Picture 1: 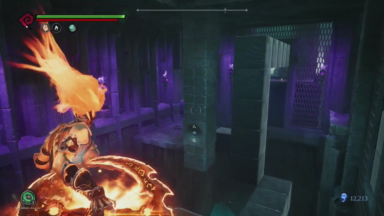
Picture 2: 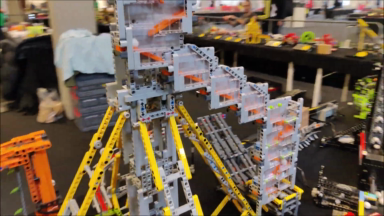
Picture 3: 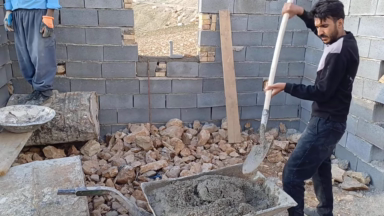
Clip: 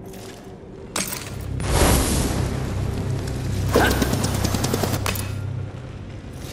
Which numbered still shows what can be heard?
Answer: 1